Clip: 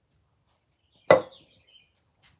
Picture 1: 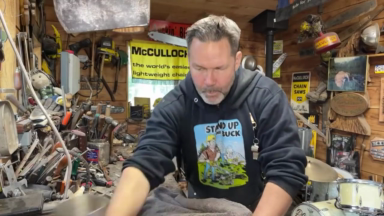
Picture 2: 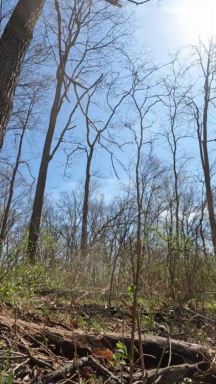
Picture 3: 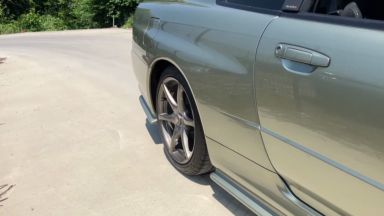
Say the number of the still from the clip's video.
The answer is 1